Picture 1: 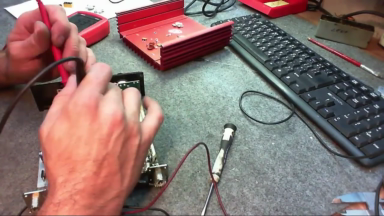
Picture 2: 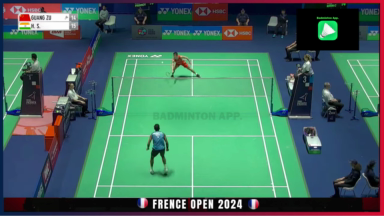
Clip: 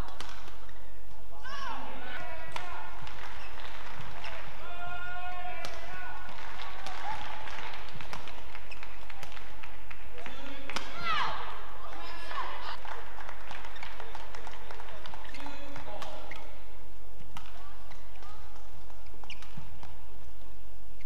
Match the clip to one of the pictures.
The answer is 2